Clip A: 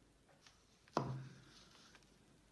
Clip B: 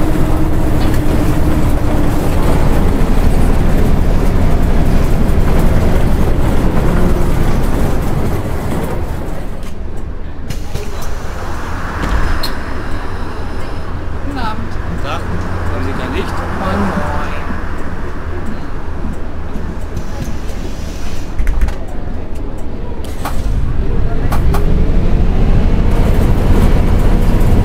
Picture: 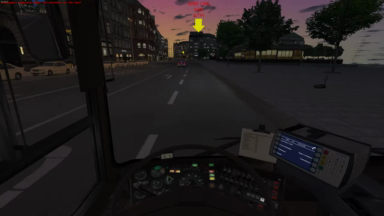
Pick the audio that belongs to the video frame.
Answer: B